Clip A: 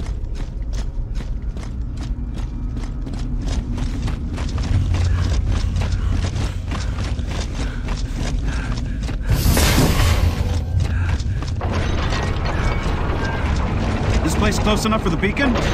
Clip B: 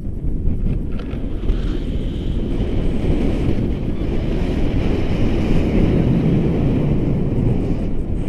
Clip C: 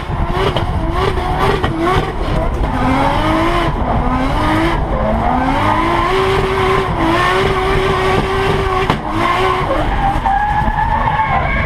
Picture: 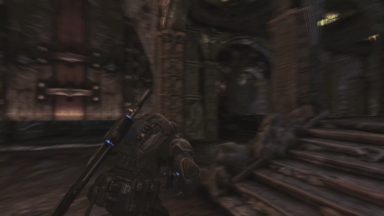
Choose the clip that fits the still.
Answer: A